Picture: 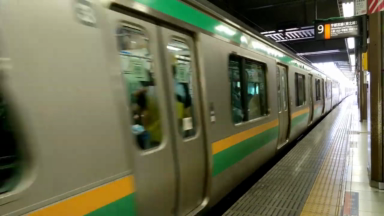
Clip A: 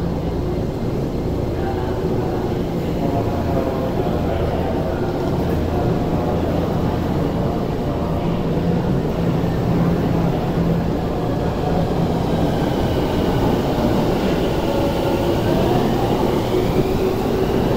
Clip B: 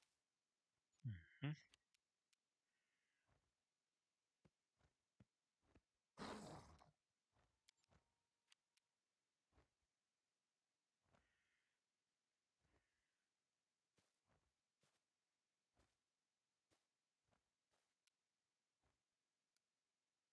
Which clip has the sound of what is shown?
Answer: A